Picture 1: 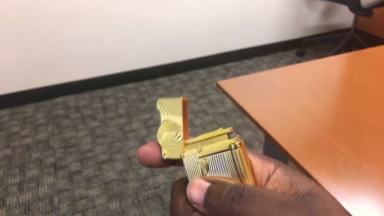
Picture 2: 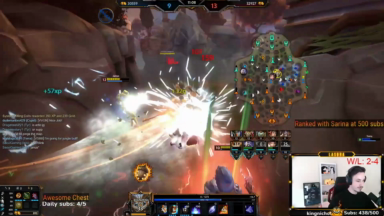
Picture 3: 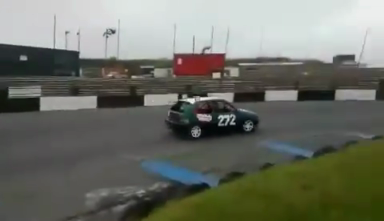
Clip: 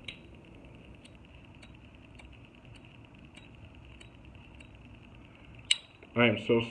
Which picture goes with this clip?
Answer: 1